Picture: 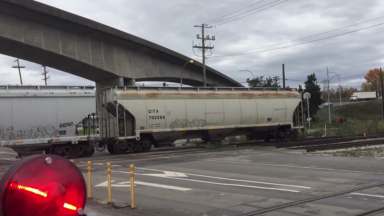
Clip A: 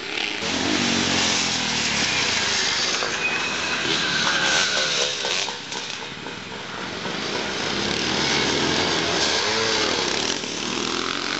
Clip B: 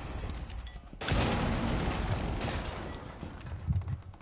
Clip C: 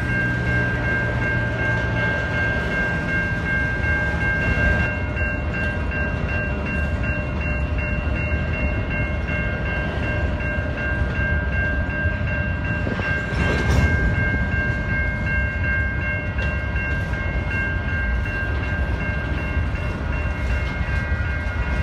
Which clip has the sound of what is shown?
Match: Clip C